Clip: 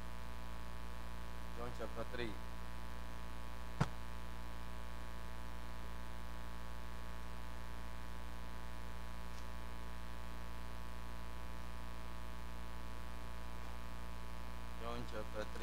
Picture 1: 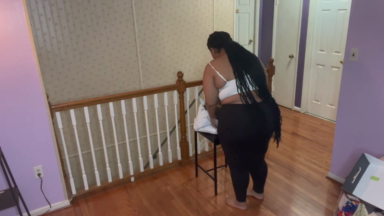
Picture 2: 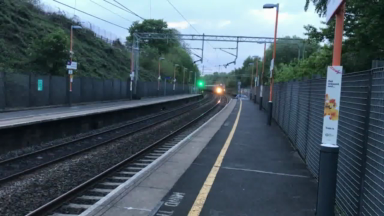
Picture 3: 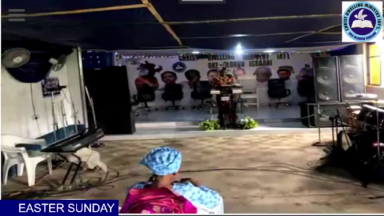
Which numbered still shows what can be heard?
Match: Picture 3